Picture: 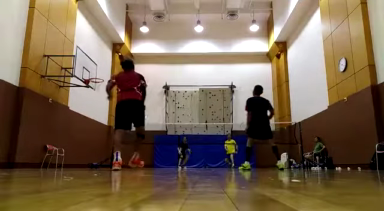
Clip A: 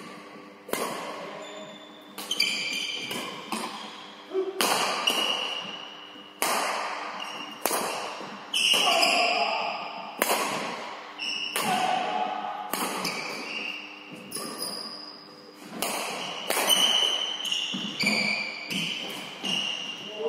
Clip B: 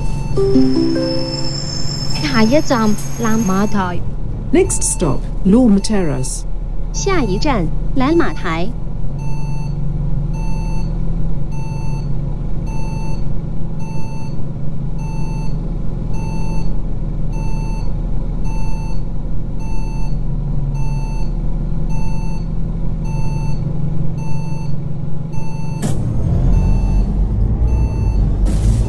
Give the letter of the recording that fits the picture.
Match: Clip A